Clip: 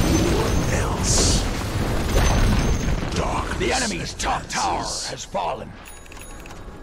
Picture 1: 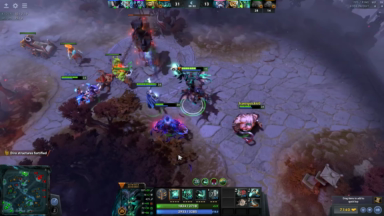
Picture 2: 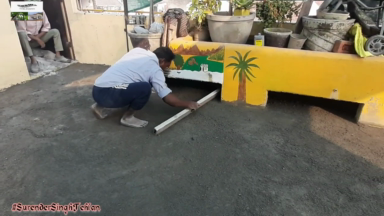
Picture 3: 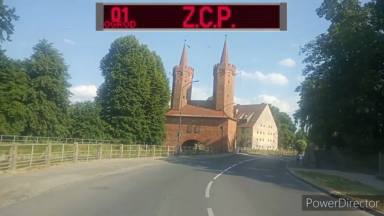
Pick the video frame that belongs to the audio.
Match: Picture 1